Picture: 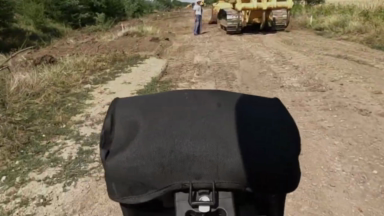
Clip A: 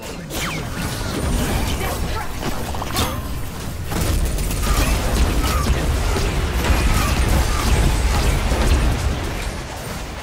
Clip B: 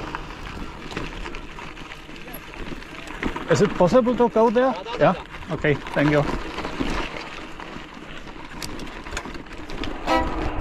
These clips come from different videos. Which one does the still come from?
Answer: B